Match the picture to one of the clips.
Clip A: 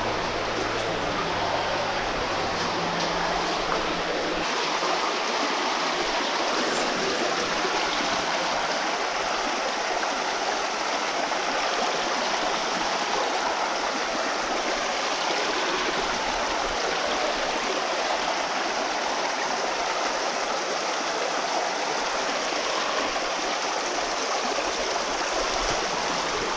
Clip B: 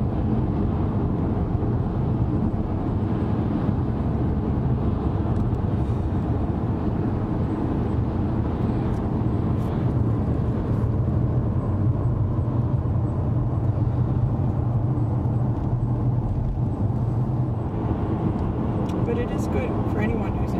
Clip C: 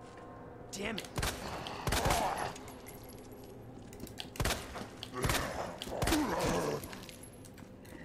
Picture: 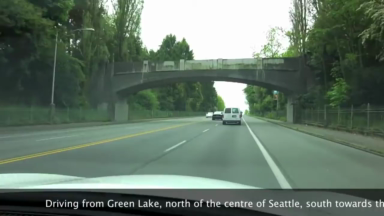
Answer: B